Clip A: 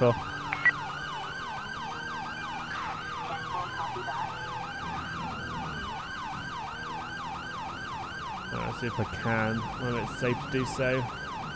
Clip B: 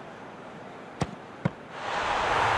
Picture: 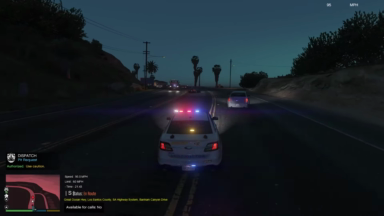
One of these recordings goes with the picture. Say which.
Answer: A